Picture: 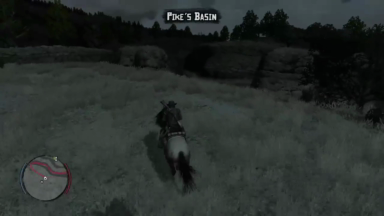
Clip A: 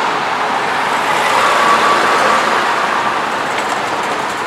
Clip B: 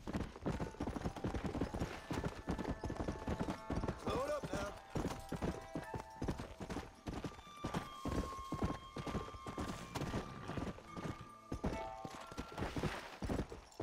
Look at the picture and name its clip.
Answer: B